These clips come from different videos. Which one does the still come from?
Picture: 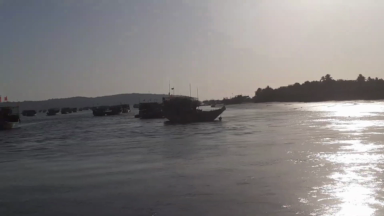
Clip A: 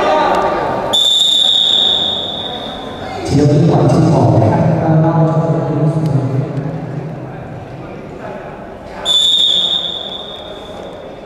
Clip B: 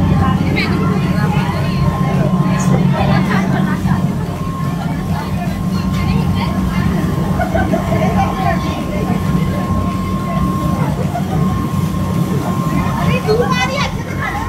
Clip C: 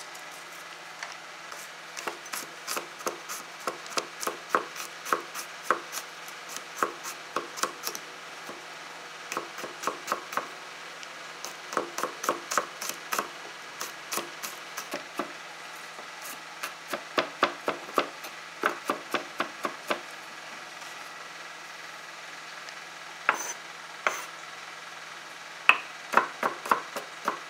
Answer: B